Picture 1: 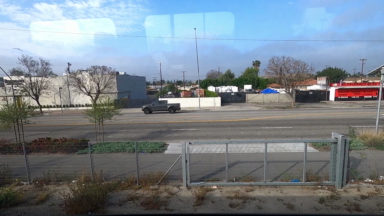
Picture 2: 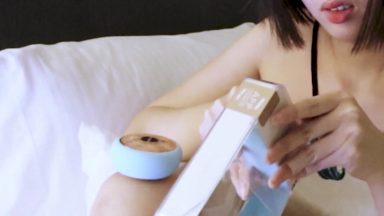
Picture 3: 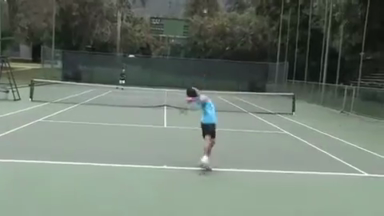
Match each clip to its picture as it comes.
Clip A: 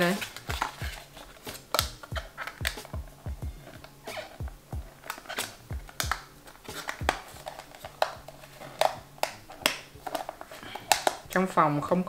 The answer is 2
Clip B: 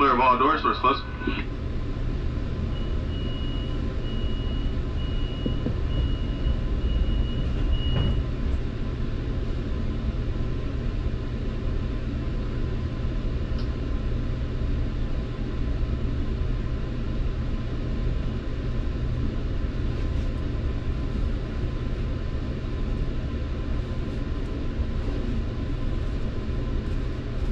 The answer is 1